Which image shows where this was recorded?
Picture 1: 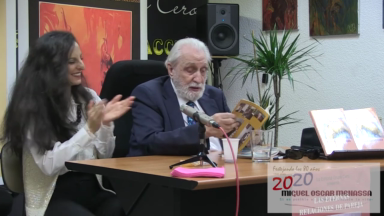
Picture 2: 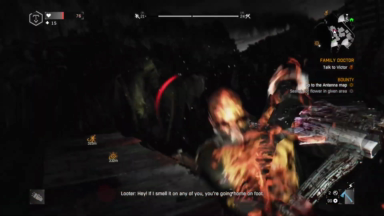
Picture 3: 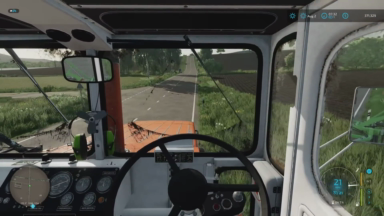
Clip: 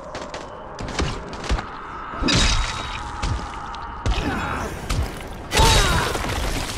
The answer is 2